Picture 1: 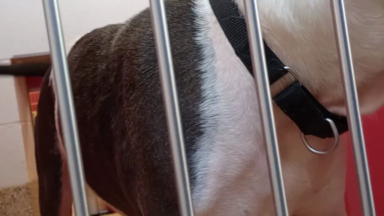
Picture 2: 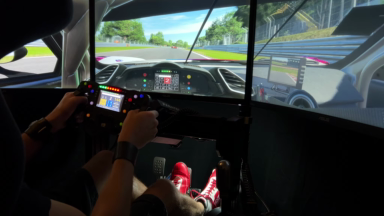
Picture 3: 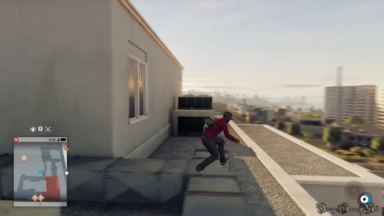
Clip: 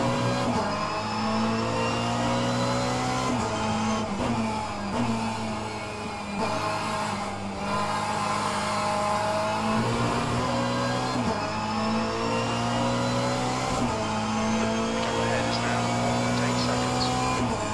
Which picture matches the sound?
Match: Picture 2